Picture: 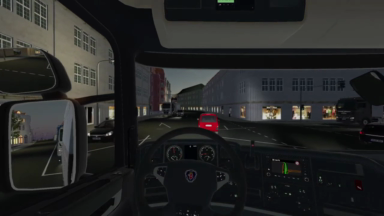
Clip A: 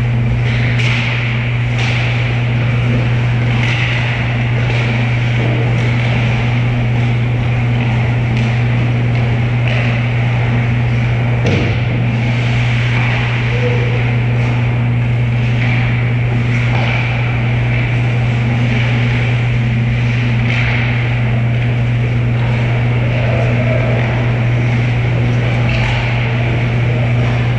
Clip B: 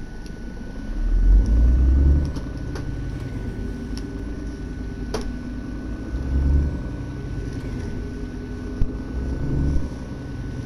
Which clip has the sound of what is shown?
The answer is B